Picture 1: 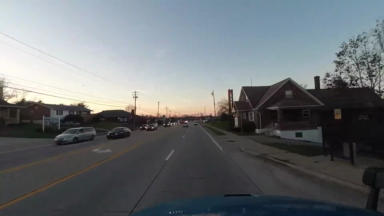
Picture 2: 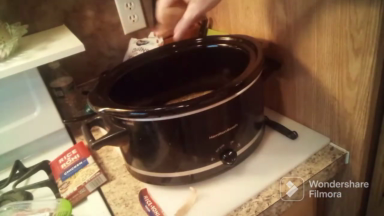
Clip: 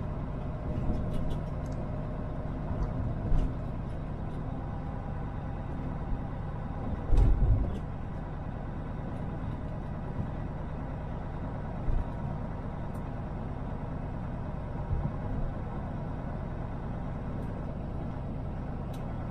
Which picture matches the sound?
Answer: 1